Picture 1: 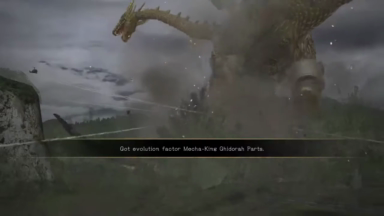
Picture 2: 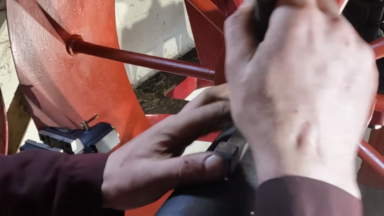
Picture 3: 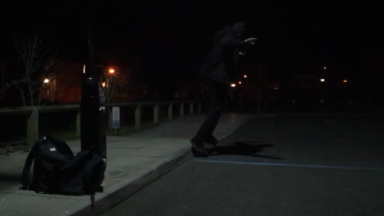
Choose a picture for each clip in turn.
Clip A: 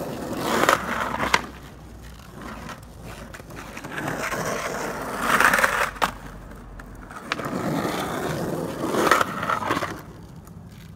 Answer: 3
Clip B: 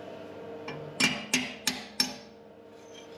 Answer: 2